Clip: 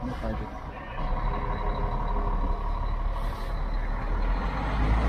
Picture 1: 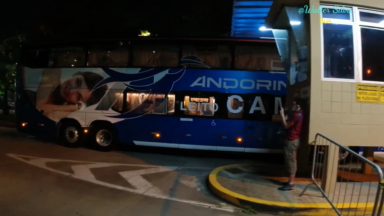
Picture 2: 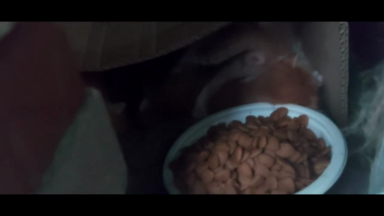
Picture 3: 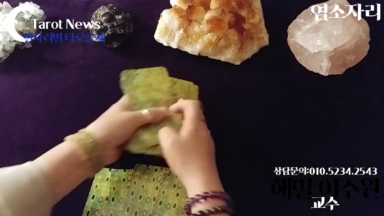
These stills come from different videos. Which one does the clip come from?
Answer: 1